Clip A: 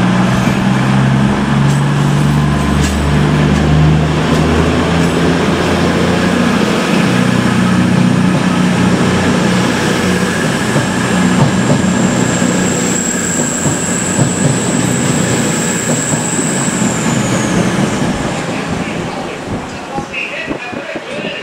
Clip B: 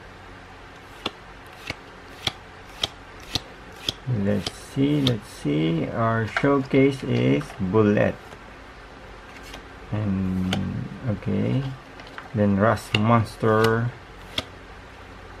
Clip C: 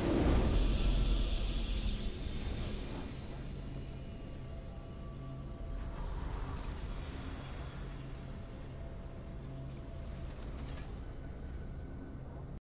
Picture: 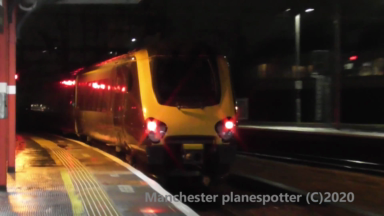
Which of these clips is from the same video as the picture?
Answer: A